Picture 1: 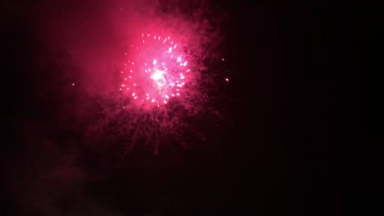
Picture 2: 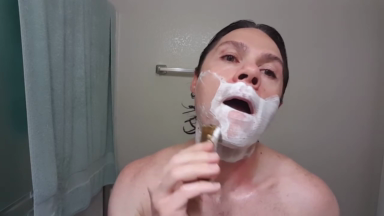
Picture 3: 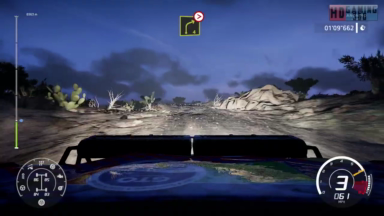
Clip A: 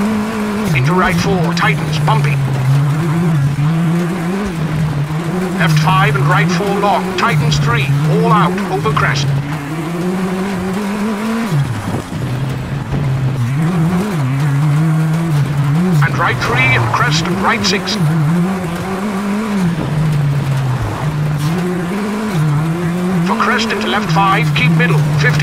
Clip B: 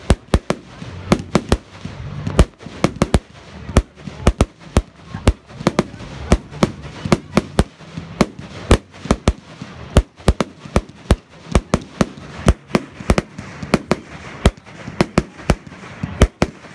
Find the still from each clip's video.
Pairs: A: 3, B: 1